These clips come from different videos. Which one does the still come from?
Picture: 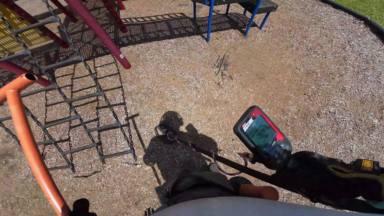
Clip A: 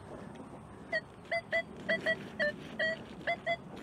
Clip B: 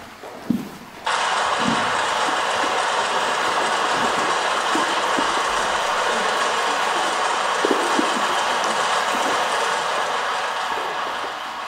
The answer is A